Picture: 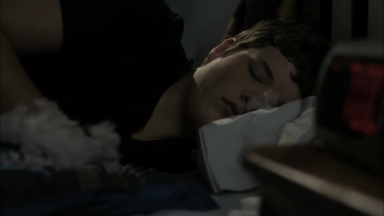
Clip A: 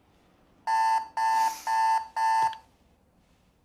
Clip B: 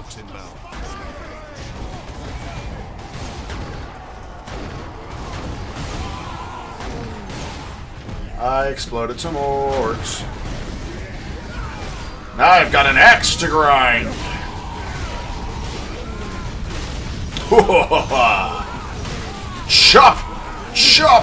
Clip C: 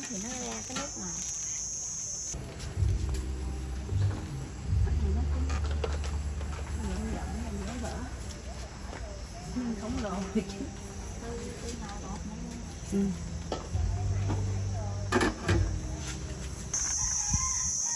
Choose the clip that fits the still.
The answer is A